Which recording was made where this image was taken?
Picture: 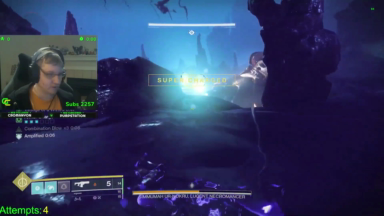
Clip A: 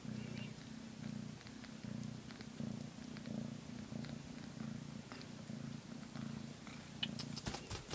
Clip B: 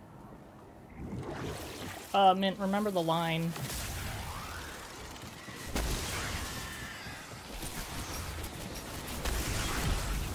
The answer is B